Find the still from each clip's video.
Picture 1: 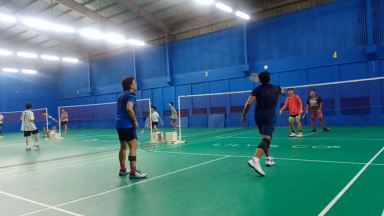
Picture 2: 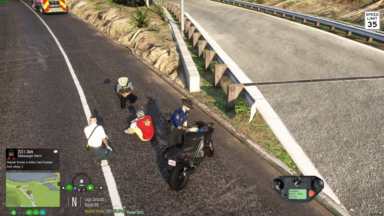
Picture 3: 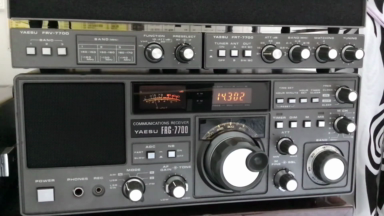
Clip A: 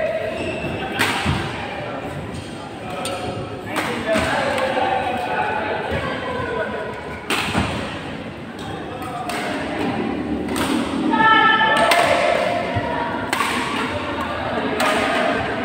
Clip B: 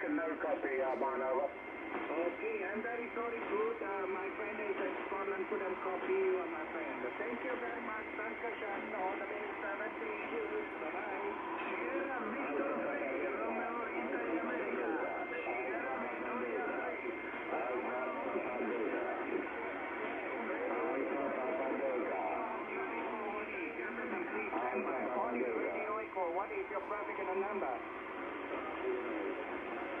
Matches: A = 1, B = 3